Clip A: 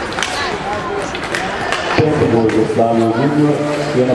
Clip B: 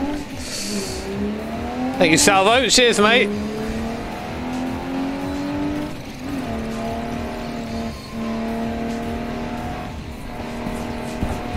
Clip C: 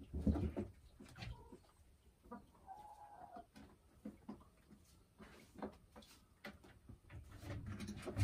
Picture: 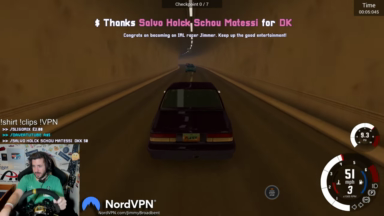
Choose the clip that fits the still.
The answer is B